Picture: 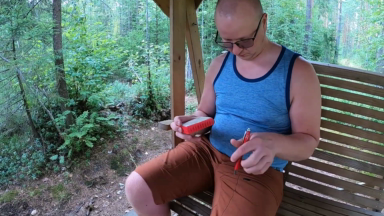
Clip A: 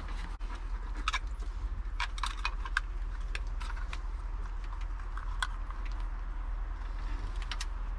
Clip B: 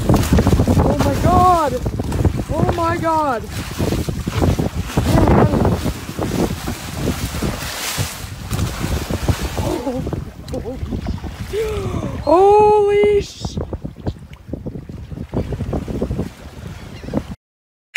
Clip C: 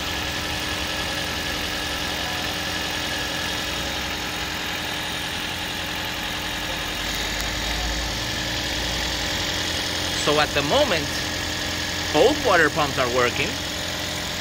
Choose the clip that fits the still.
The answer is A